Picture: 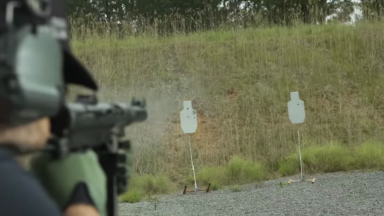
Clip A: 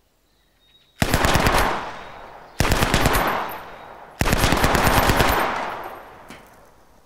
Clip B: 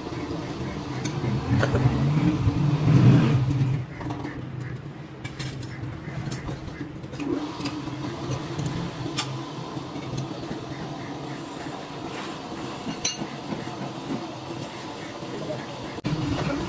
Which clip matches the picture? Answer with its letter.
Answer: A